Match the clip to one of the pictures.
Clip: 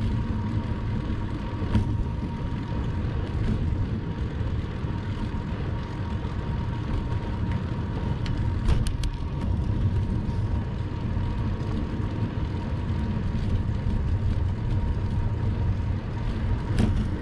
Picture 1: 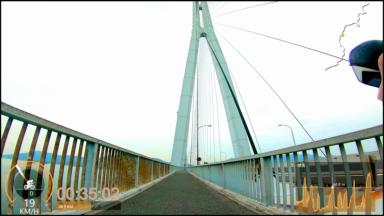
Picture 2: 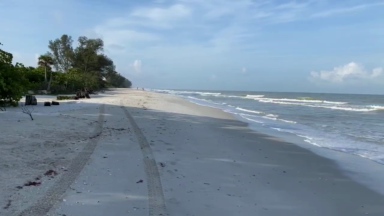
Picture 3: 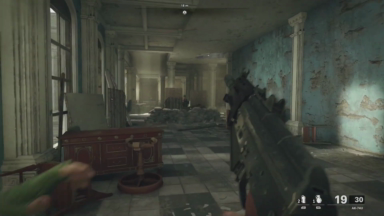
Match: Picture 1